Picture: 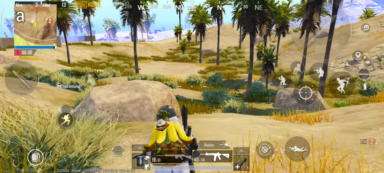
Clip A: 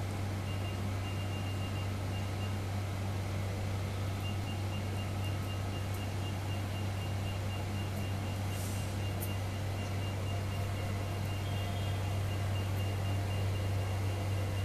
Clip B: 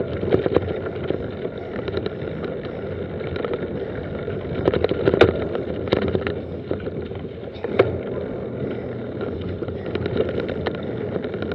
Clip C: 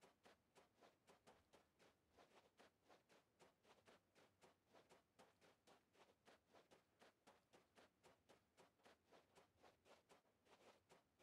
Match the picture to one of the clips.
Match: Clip C